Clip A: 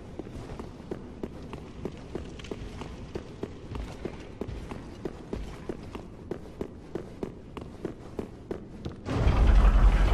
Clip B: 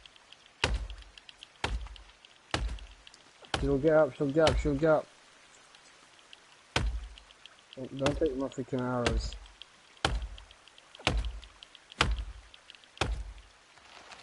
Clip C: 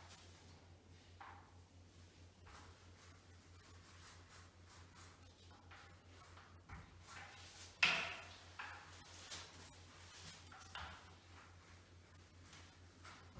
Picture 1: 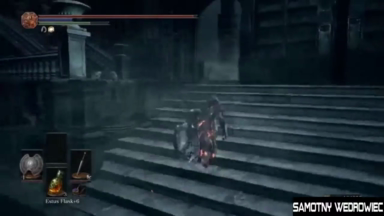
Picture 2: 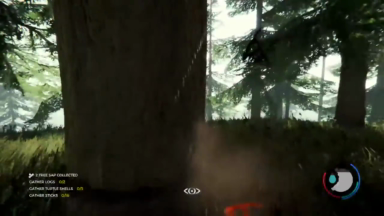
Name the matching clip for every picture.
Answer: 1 A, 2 B